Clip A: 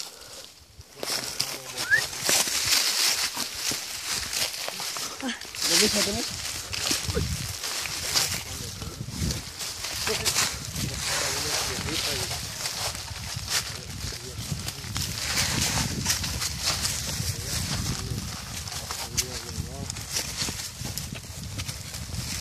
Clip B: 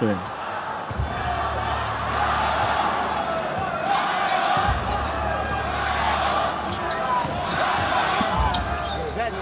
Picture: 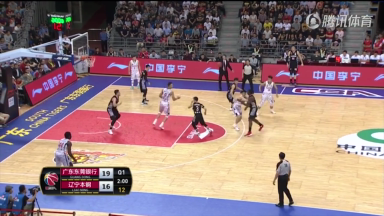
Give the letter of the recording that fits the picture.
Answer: B